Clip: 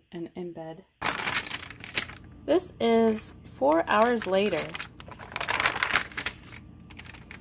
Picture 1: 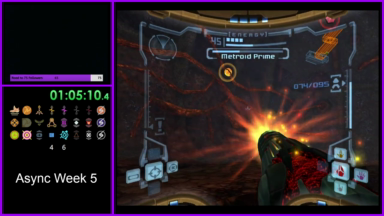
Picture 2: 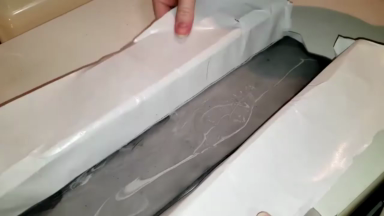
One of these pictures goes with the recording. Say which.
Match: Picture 2